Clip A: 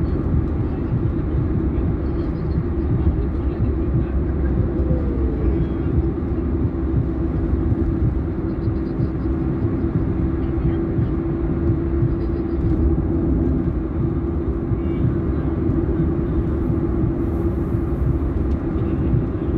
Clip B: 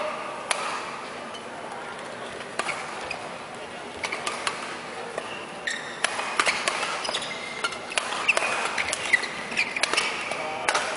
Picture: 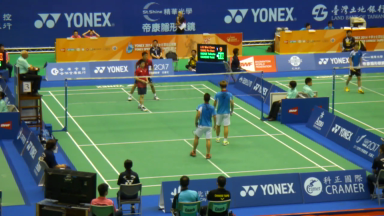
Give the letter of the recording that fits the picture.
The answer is B